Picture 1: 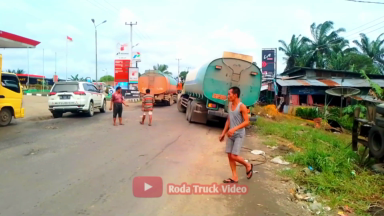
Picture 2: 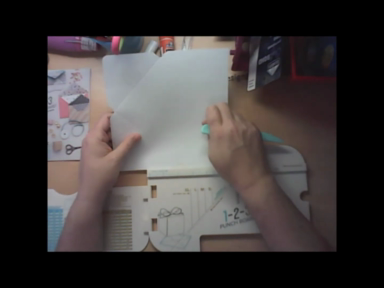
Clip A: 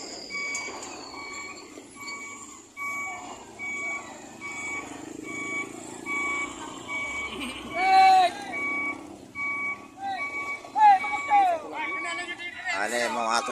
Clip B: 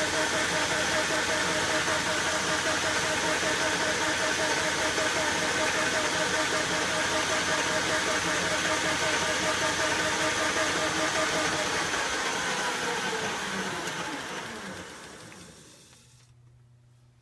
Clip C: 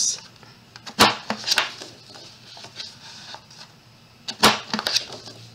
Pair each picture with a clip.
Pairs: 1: A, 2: C